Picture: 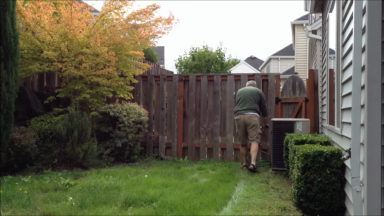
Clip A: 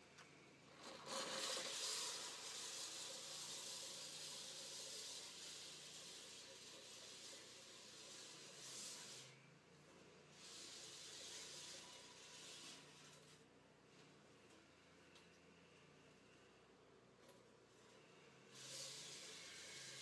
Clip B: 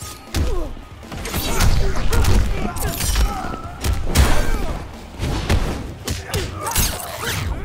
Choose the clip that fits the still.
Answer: A